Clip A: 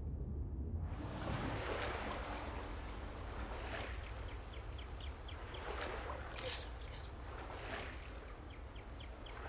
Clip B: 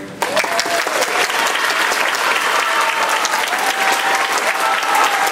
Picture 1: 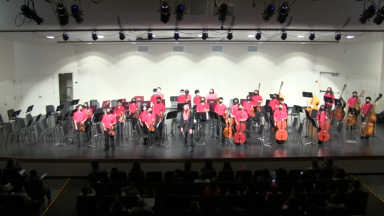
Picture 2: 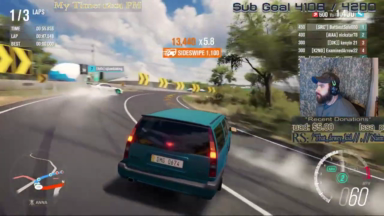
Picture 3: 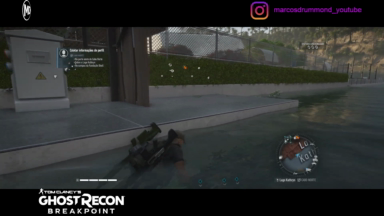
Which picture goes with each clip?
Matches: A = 3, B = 1